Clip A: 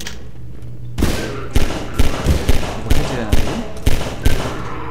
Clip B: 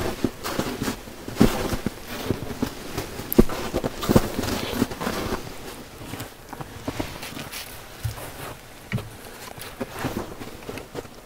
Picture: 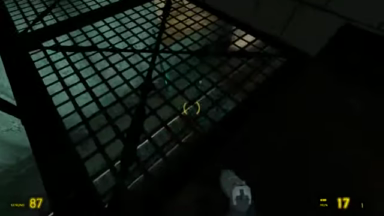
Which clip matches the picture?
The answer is A